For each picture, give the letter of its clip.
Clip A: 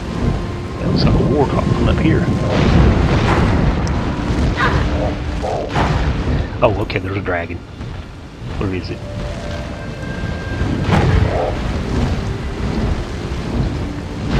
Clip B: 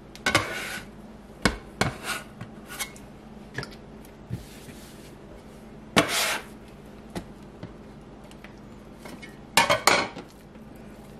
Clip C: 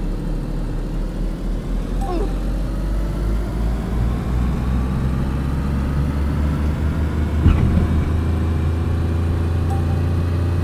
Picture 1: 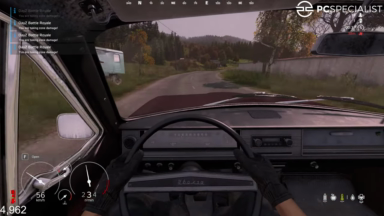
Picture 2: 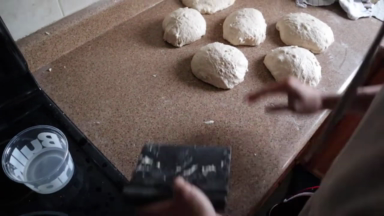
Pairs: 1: C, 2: B